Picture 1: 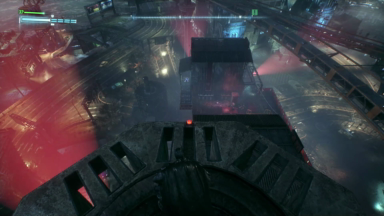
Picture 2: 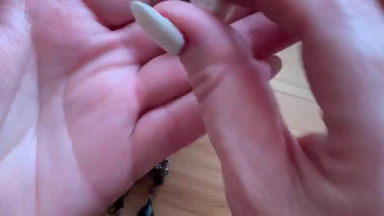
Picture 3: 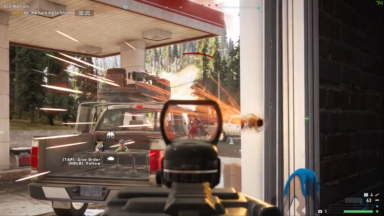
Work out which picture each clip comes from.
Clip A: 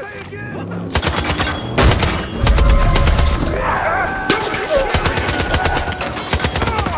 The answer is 3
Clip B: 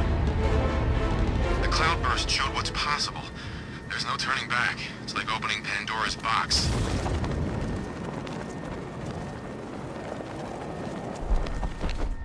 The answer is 1